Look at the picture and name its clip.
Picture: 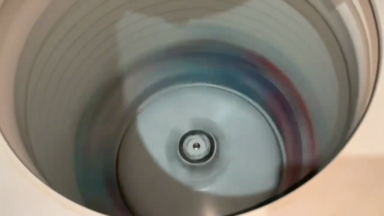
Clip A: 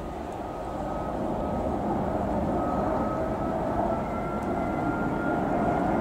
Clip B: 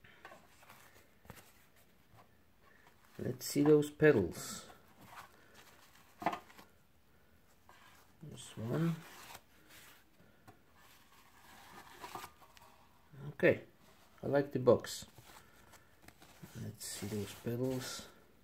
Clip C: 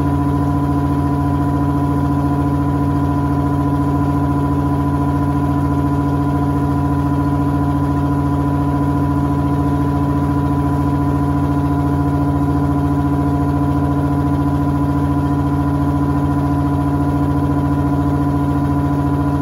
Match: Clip C